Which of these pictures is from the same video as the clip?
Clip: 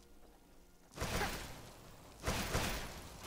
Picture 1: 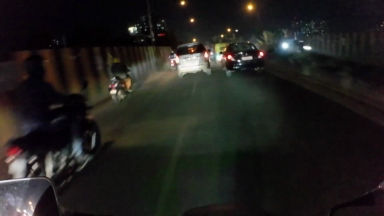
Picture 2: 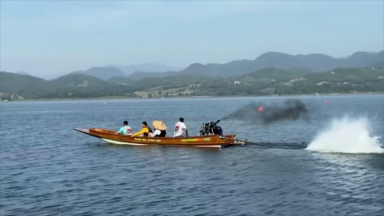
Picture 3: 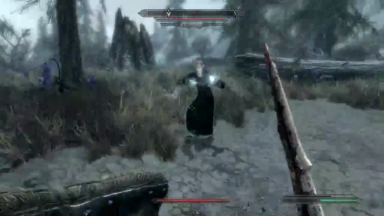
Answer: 3